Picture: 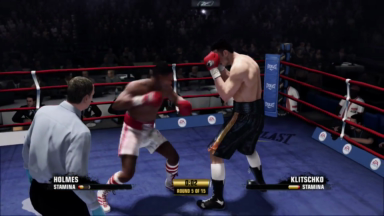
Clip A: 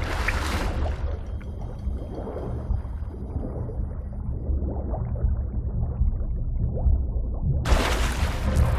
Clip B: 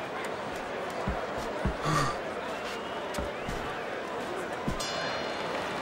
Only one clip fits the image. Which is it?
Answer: B